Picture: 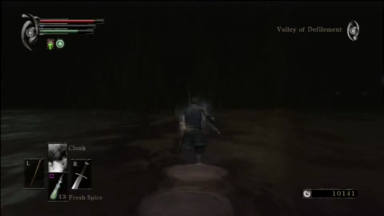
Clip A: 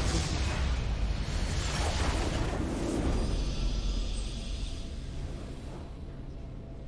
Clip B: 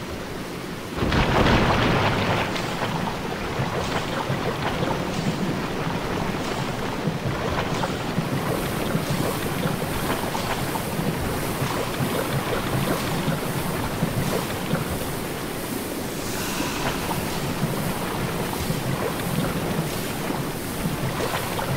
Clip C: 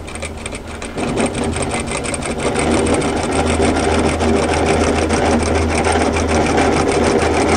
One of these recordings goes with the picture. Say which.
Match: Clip B